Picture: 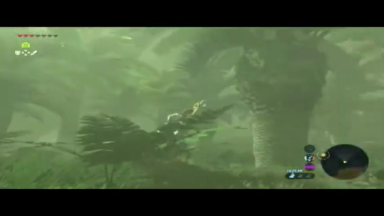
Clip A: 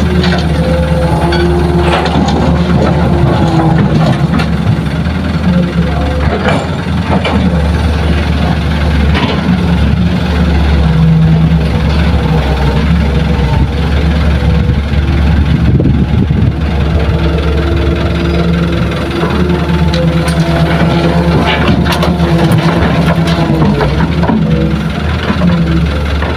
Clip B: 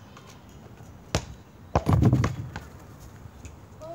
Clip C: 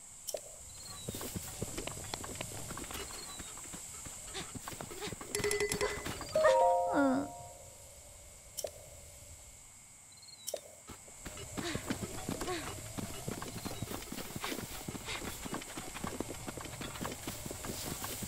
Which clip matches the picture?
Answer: C